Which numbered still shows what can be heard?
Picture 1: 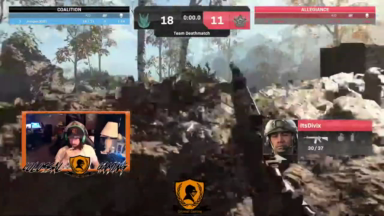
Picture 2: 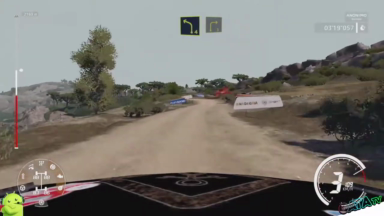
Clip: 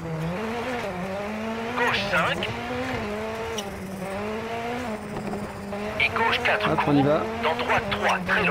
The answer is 2